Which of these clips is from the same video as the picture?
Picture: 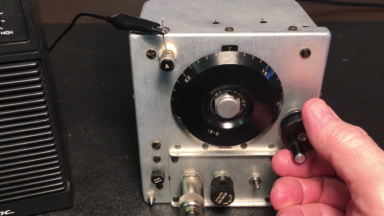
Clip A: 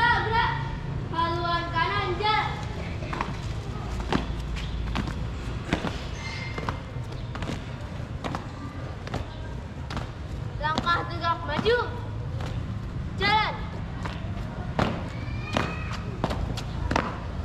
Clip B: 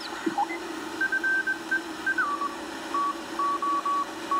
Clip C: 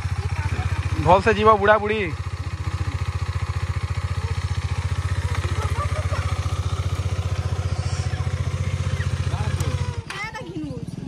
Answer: B